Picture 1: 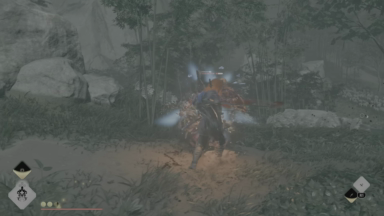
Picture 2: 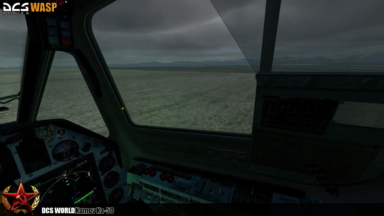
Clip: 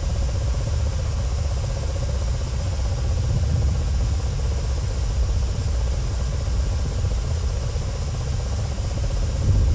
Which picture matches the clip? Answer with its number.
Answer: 2